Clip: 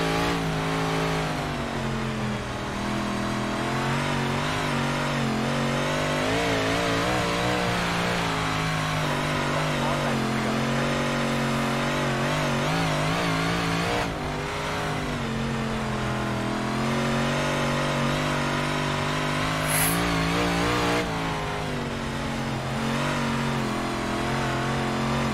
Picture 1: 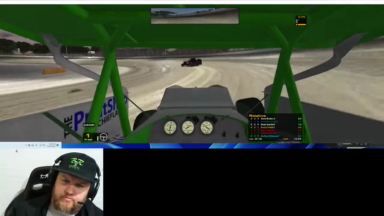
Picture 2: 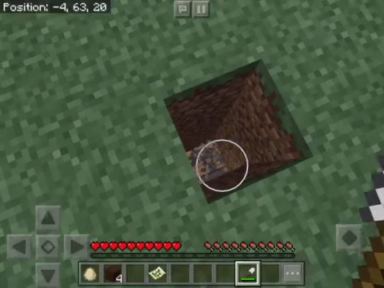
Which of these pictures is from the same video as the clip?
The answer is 1